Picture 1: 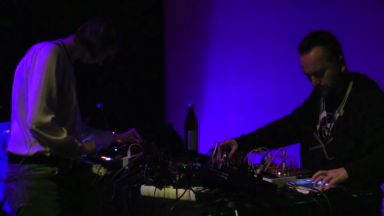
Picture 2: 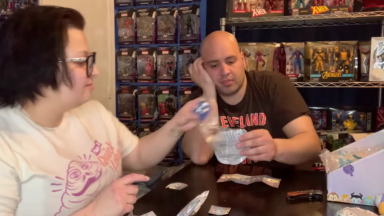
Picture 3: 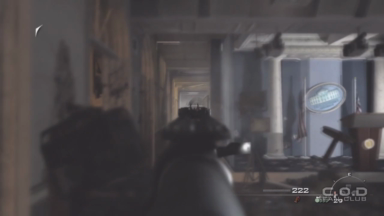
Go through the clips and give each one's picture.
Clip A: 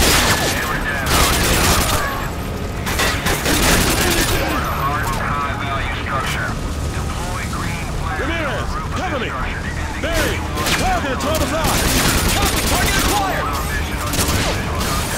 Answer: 3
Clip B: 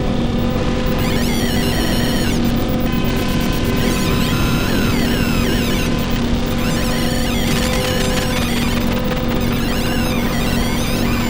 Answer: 1